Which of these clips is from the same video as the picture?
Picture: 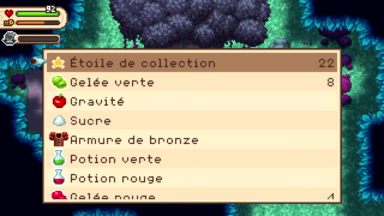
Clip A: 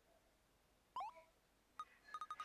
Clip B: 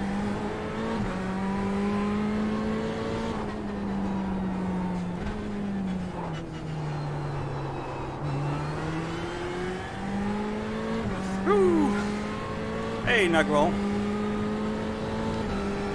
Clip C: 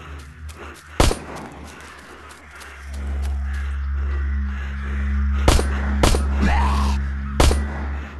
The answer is A